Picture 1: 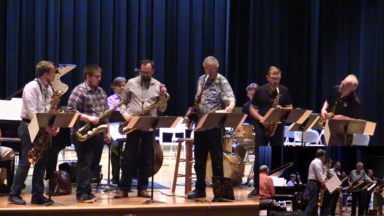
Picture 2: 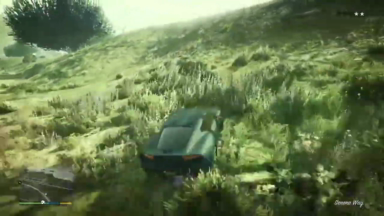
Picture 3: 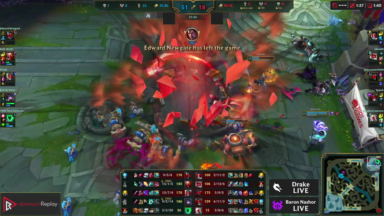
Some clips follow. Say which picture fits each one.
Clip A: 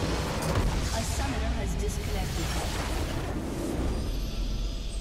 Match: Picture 3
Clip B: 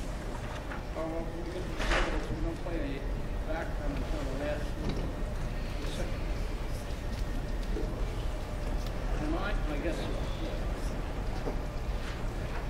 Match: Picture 1